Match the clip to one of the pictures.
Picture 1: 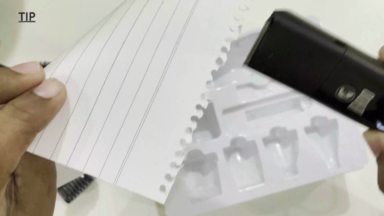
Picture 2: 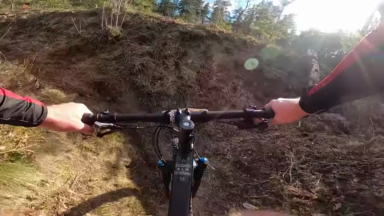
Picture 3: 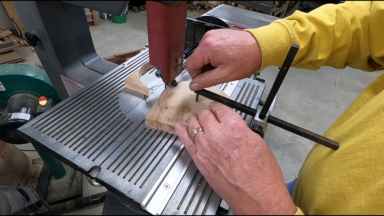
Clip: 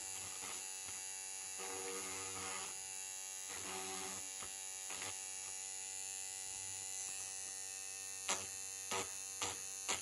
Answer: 1